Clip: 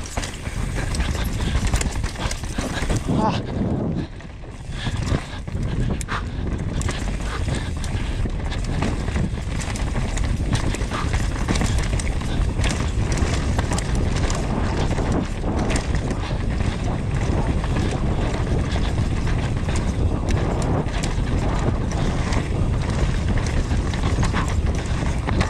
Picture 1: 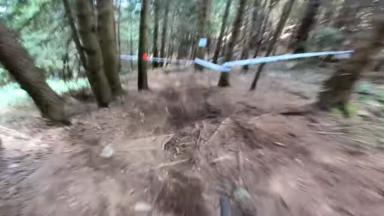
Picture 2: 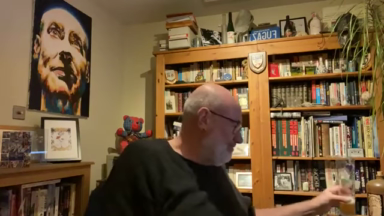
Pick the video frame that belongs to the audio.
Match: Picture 1